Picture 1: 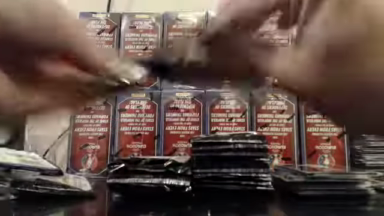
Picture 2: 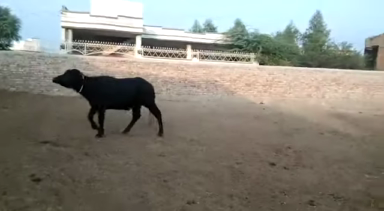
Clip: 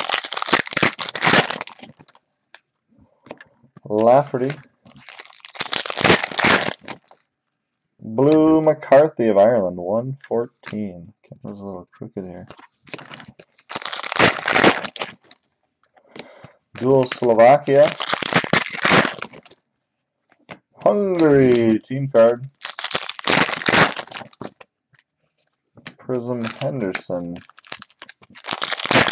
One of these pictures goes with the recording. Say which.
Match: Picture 1